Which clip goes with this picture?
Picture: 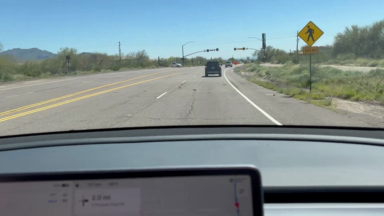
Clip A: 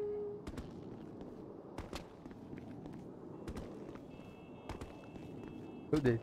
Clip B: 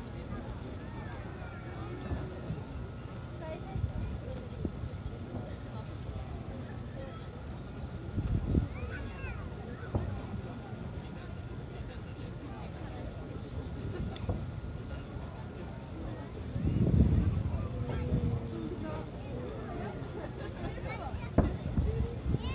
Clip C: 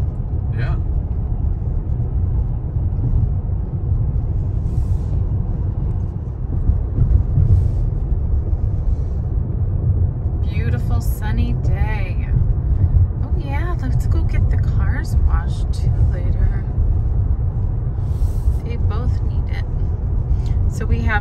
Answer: C